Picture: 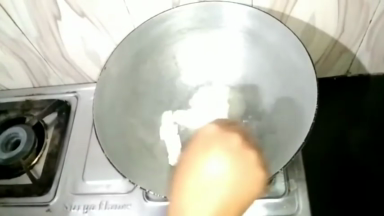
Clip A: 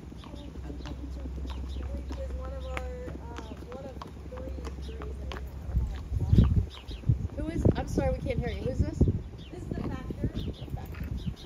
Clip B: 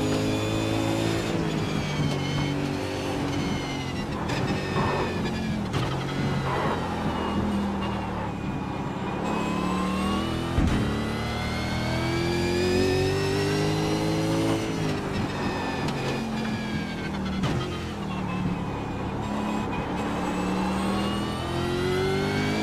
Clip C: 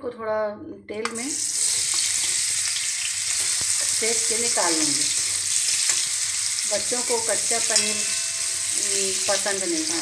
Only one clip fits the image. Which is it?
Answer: C